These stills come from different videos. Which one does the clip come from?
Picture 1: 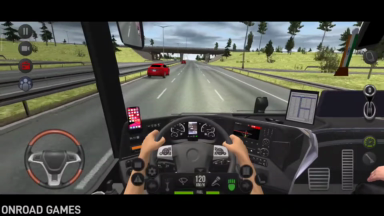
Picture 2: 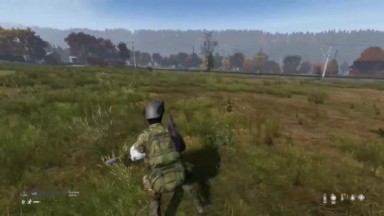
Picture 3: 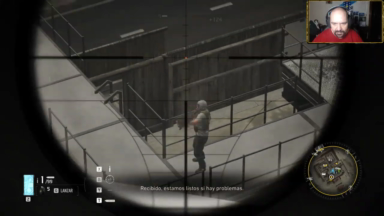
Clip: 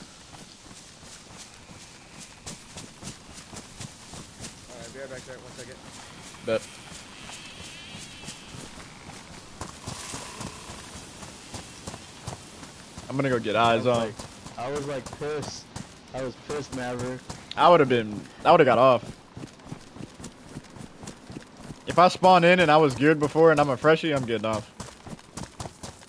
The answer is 2